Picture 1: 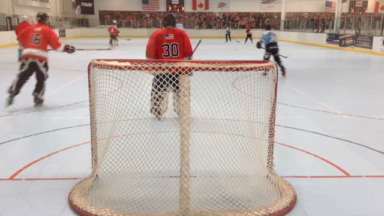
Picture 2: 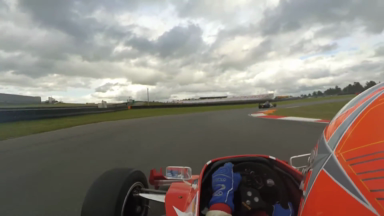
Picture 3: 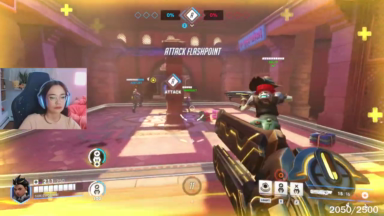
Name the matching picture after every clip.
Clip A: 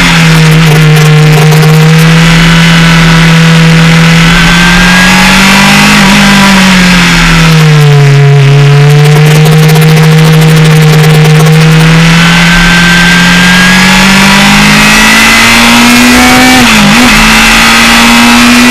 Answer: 2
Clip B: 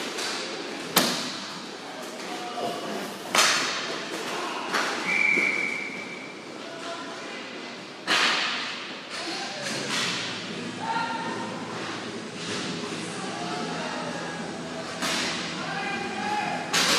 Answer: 1